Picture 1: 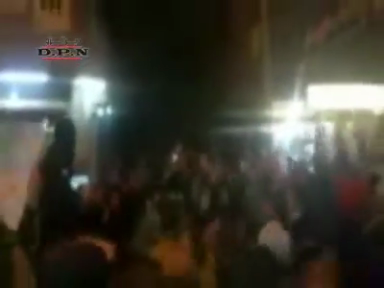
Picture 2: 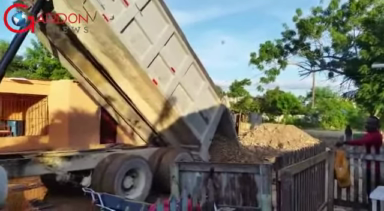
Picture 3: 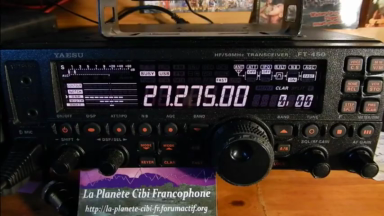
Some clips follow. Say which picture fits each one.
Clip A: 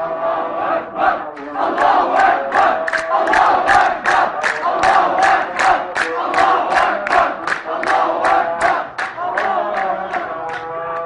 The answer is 1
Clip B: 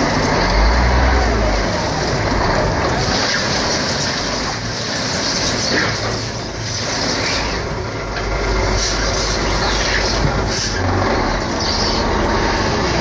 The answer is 2